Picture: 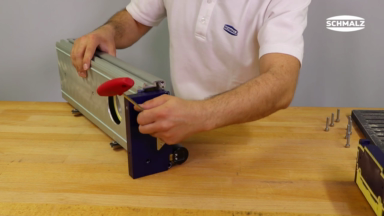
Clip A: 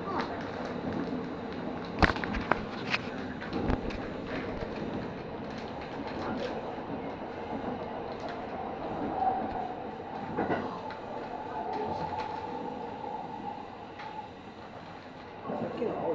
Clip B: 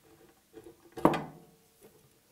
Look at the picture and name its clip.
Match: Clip B